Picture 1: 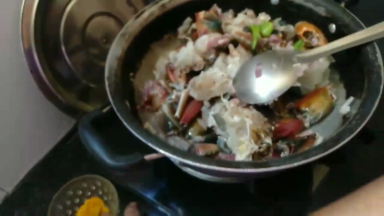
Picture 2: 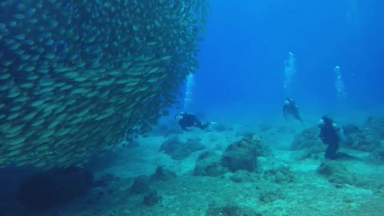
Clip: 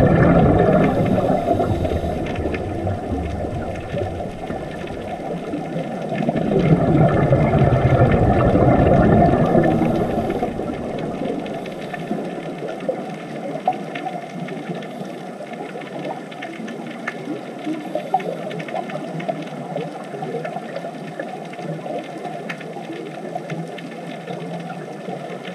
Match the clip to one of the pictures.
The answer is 2